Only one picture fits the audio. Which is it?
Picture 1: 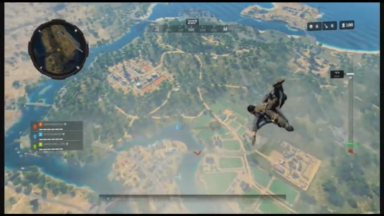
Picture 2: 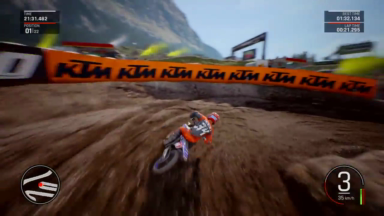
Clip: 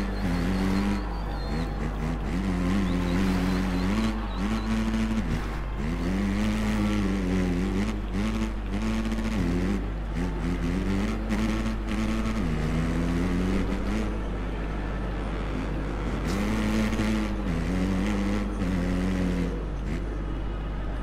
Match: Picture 2